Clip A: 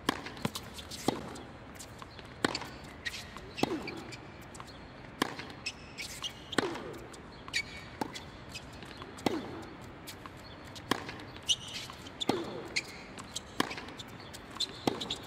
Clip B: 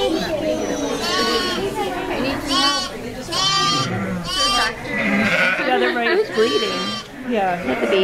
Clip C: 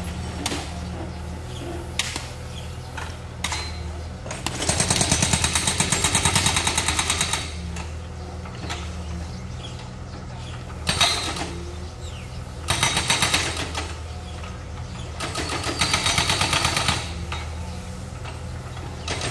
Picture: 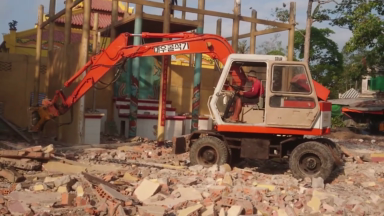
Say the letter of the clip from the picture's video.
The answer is C